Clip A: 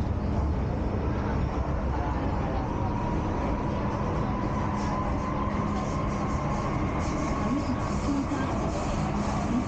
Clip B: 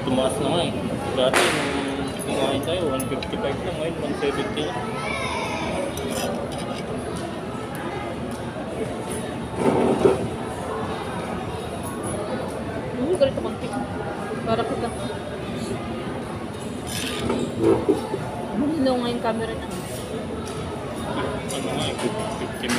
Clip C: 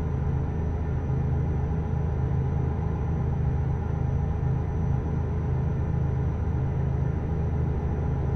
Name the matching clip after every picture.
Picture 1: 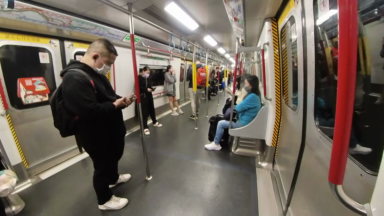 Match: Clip A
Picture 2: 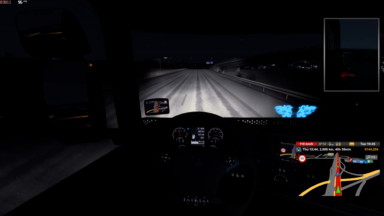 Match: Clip C